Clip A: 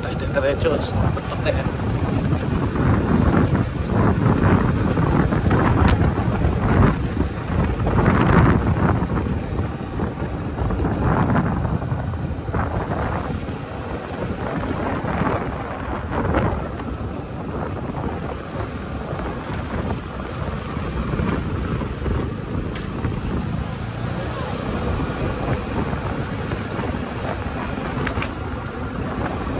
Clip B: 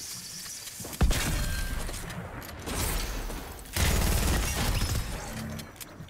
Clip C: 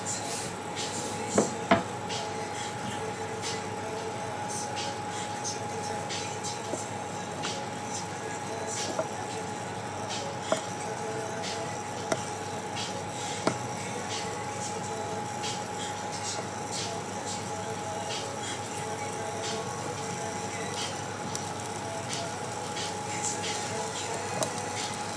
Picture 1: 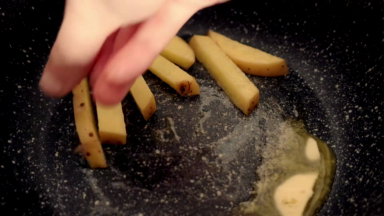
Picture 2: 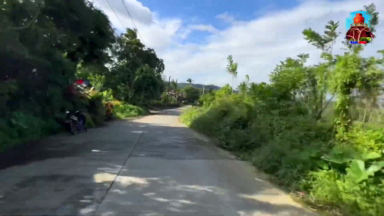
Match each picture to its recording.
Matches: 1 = C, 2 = A